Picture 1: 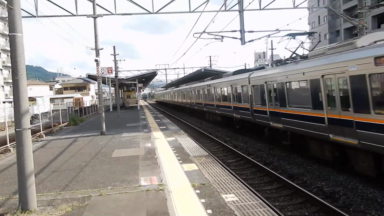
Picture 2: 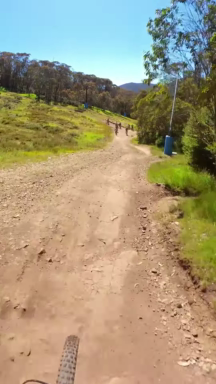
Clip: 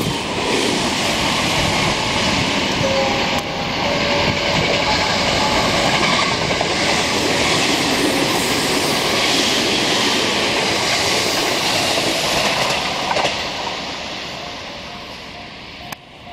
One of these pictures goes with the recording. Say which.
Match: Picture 1